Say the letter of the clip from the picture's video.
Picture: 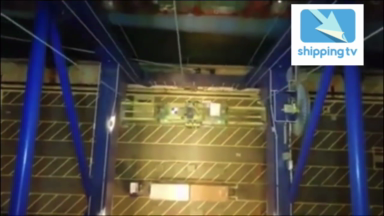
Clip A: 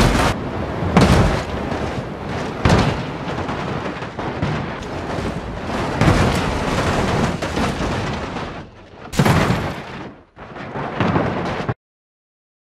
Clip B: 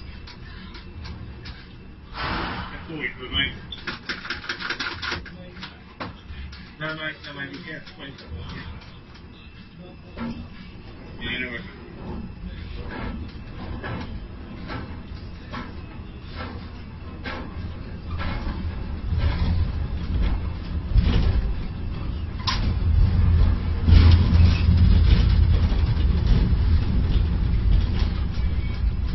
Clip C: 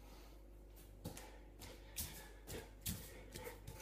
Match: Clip B